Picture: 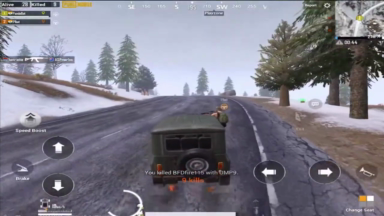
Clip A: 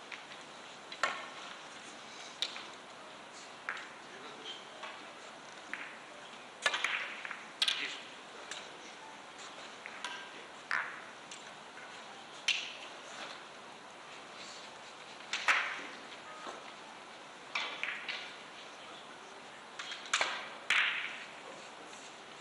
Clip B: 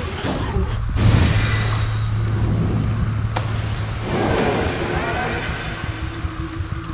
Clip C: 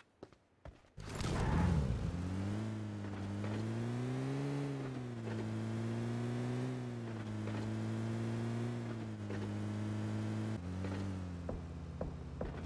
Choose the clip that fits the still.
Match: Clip C